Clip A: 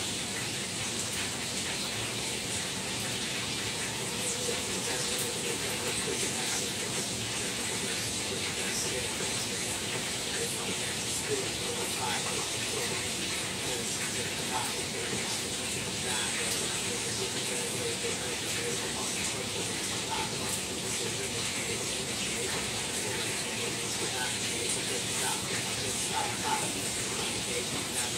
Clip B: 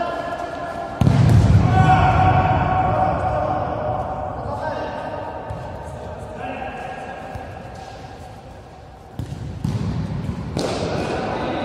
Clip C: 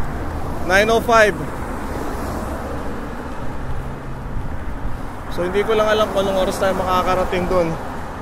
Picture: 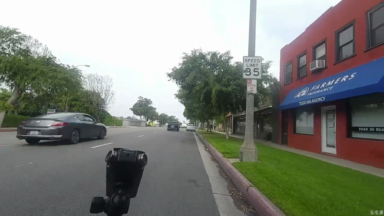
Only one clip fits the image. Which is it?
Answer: C